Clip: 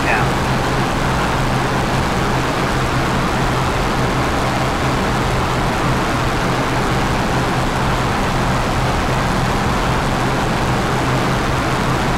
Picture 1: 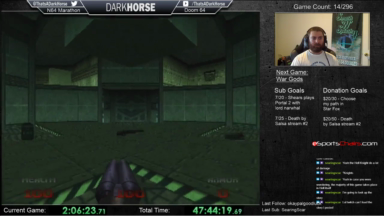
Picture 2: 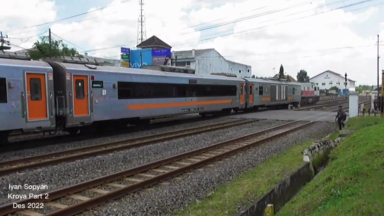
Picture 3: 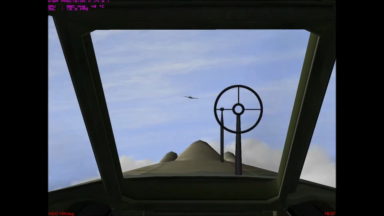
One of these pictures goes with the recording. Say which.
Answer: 3